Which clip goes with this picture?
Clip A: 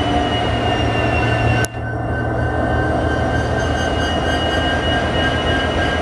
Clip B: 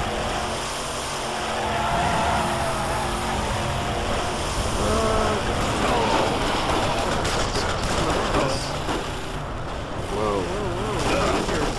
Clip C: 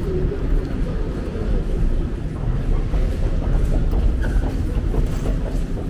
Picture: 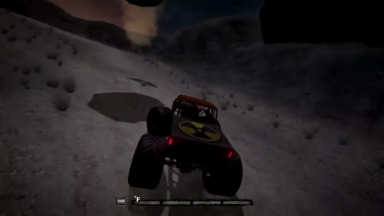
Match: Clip B